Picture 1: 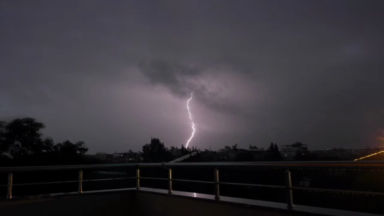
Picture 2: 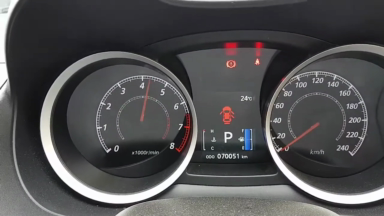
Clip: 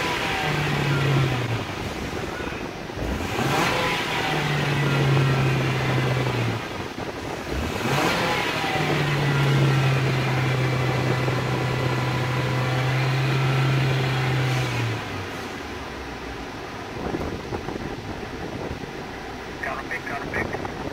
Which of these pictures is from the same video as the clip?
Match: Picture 2